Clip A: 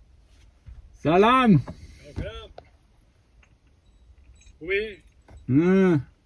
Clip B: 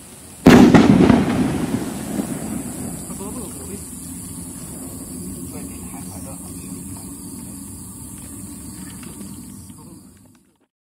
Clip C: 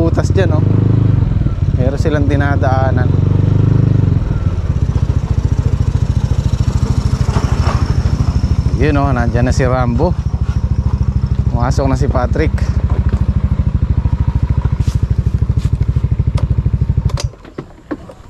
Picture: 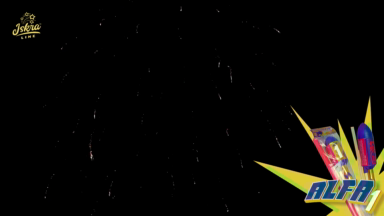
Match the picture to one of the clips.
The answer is B